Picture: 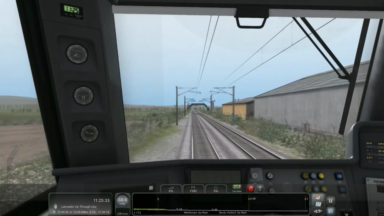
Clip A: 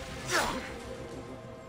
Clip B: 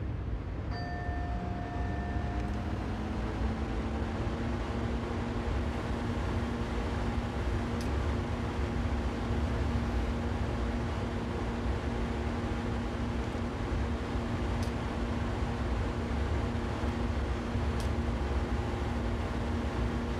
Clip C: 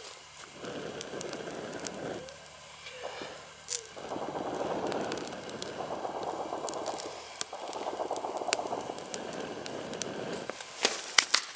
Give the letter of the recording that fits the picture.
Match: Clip B